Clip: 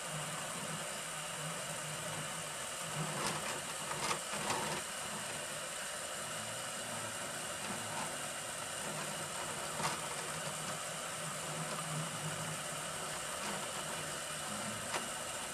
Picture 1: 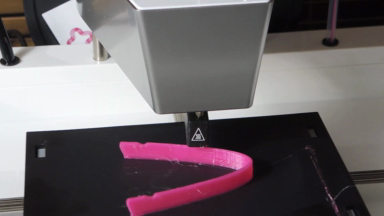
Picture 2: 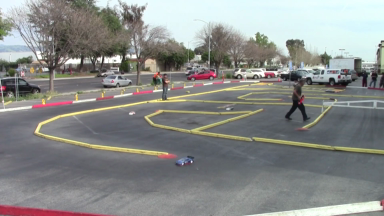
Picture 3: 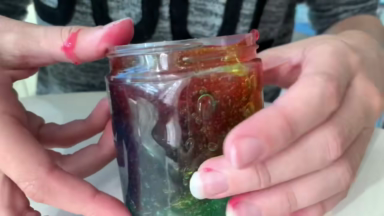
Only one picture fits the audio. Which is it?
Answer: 1